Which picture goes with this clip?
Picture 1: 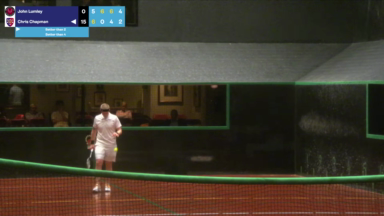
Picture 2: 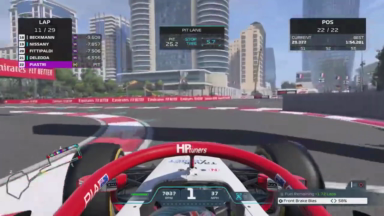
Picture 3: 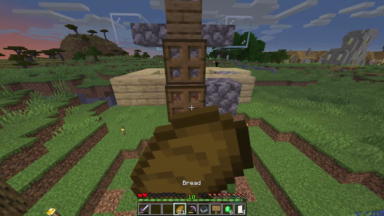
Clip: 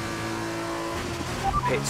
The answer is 2